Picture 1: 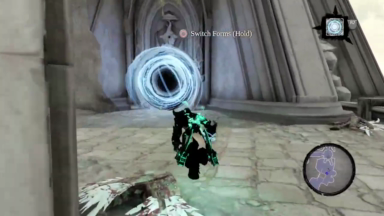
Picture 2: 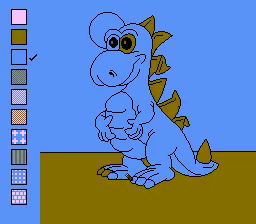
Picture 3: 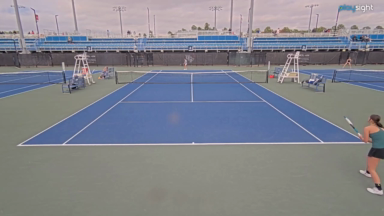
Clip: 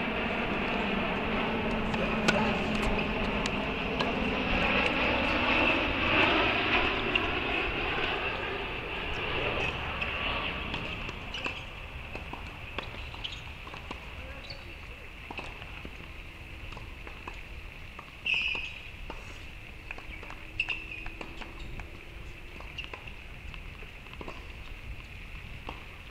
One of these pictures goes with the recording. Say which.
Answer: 3